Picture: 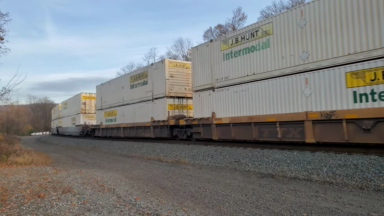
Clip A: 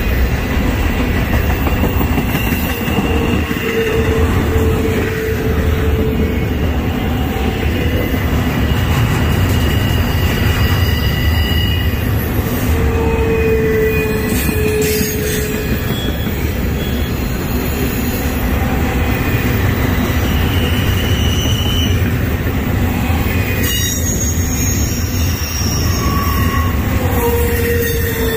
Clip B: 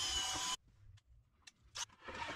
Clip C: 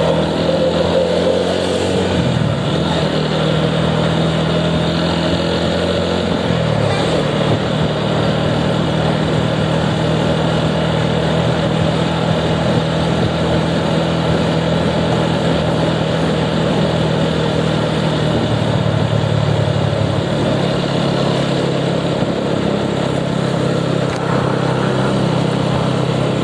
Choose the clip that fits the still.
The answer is A